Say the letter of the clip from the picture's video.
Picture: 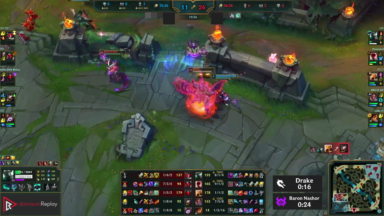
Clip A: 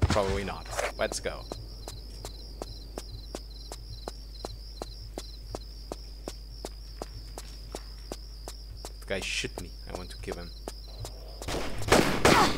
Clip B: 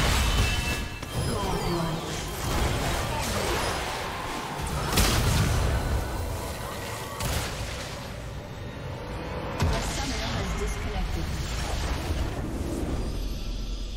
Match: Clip B